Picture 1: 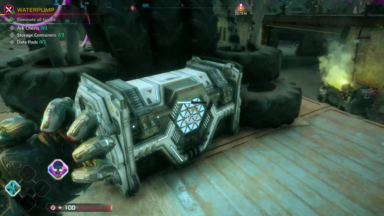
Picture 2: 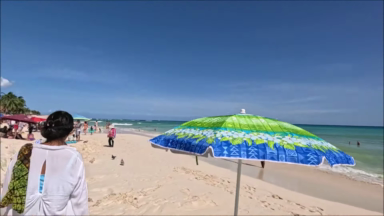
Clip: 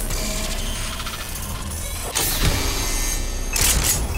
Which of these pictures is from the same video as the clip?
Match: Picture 1